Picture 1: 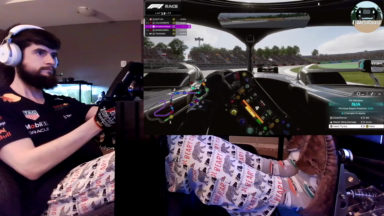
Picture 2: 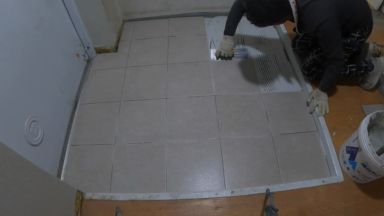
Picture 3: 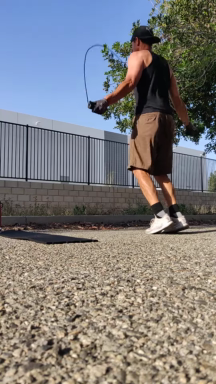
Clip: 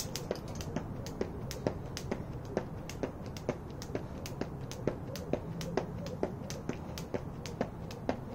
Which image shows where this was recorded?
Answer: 3